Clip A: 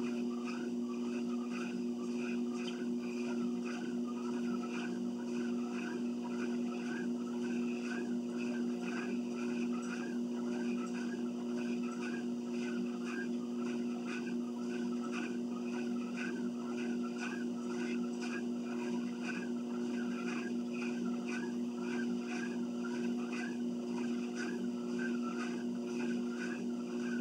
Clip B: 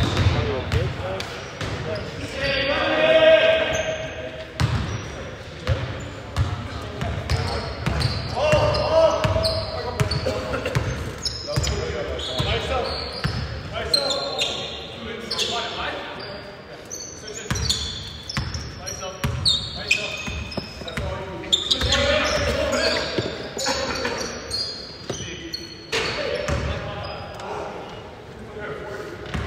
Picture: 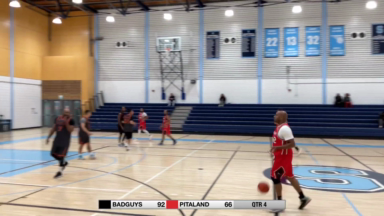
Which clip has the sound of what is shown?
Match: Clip B